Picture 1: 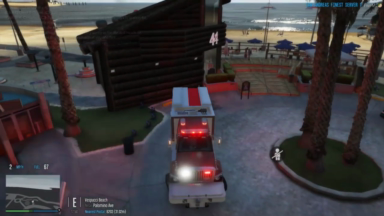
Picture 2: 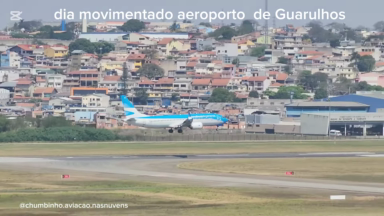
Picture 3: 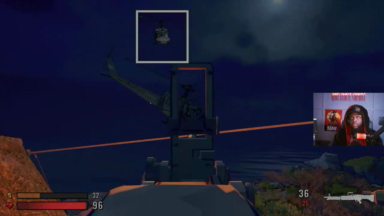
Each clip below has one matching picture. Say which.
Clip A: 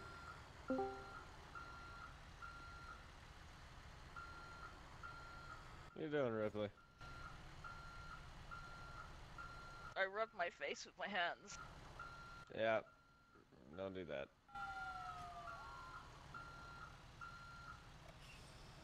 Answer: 1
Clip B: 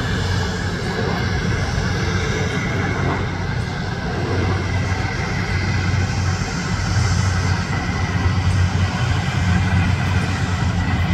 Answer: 2